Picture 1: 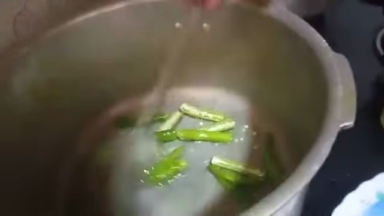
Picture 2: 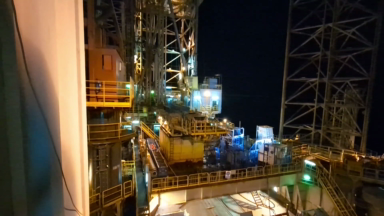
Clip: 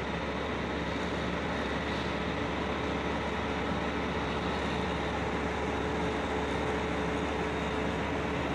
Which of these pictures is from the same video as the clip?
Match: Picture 2